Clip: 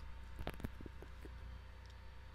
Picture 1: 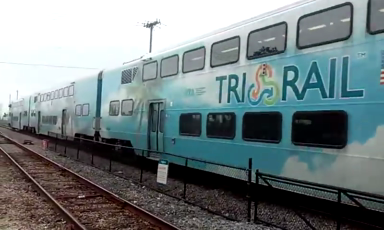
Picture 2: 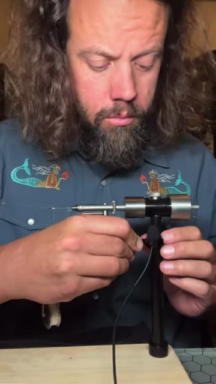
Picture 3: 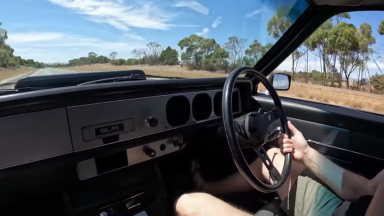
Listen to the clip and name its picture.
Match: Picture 2